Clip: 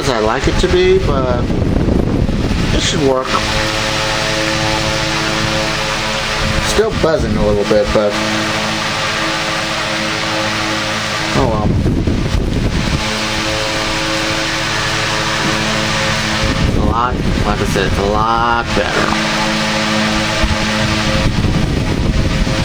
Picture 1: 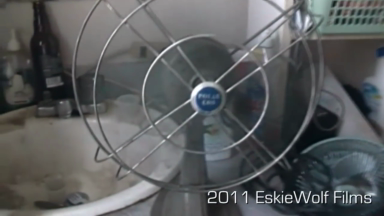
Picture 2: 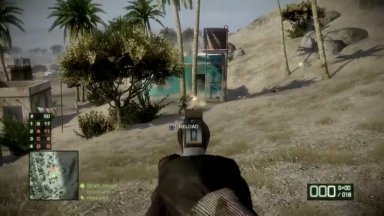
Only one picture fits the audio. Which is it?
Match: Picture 1